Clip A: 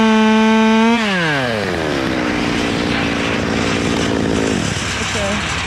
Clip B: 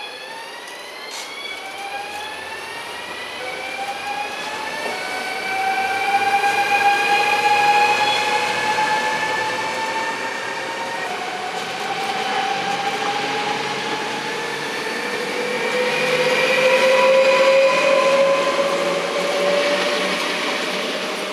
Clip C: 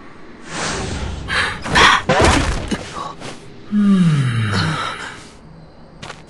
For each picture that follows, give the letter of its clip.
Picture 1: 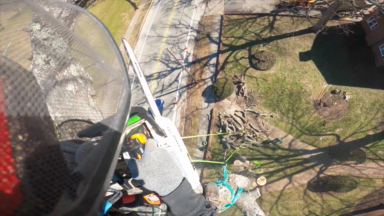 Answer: A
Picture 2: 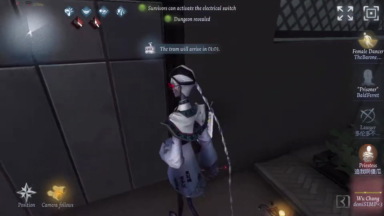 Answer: C